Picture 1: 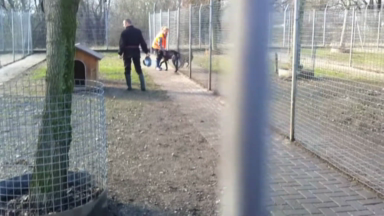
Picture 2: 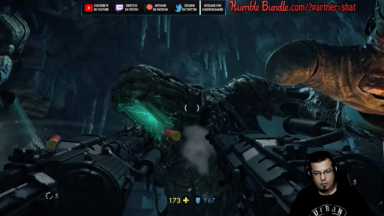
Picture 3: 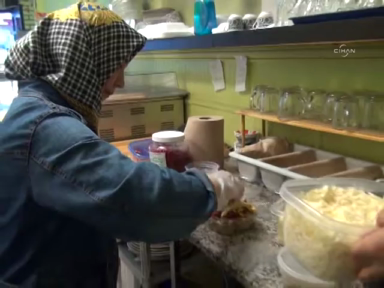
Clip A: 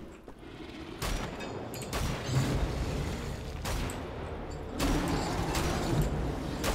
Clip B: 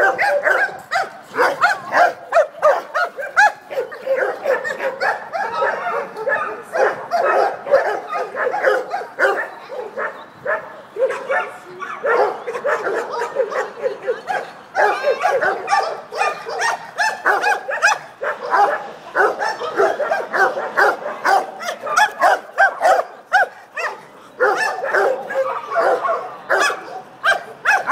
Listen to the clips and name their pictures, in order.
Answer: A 2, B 1